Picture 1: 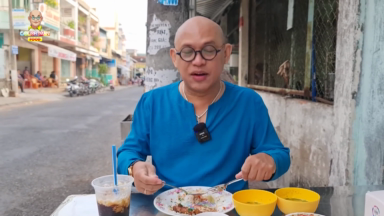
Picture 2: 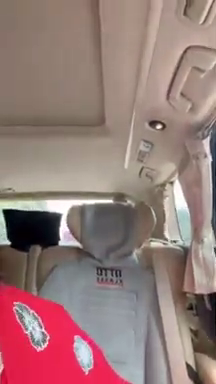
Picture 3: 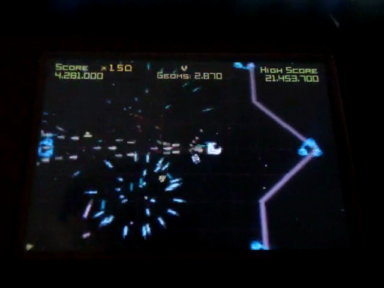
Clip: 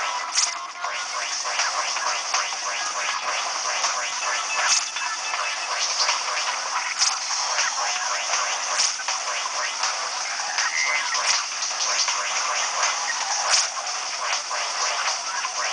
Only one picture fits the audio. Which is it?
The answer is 3